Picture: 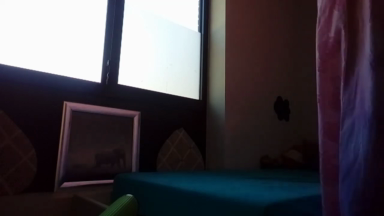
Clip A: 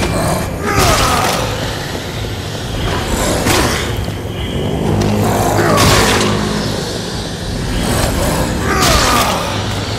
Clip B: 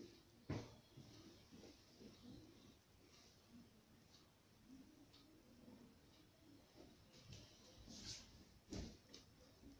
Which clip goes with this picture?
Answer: B